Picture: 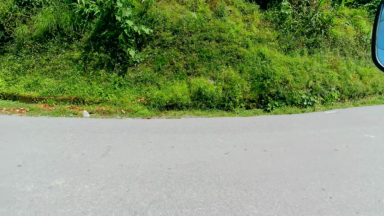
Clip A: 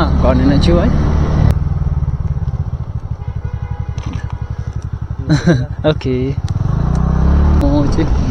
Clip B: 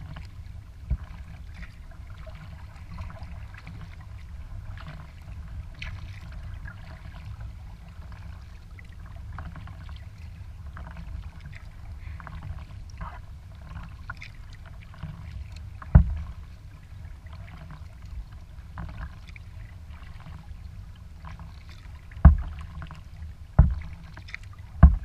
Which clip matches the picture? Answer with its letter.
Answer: A